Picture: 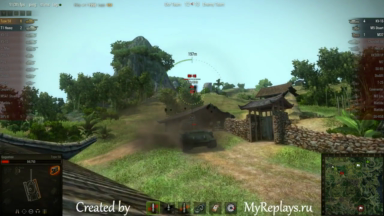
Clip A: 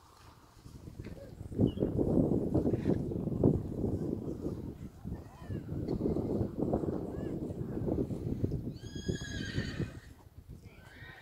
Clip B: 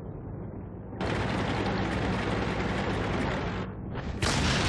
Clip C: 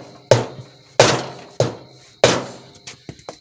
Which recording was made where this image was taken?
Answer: B